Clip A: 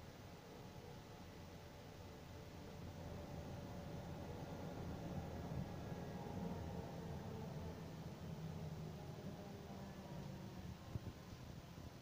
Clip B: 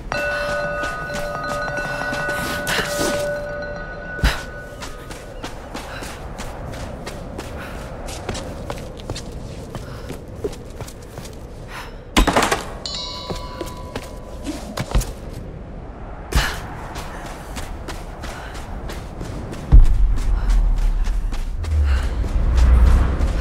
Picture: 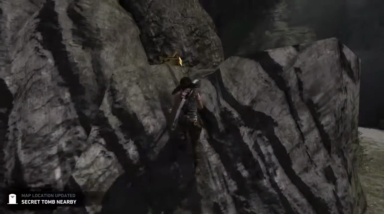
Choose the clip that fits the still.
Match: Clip B